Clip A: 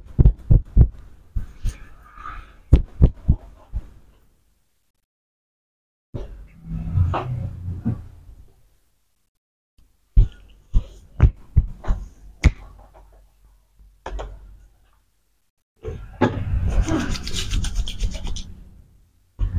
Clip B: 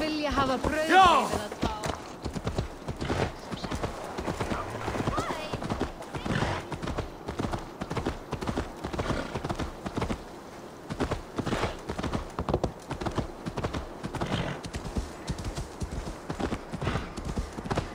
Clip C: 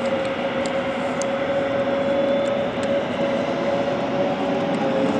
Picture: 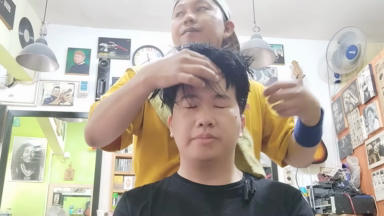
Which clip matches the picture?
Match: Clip A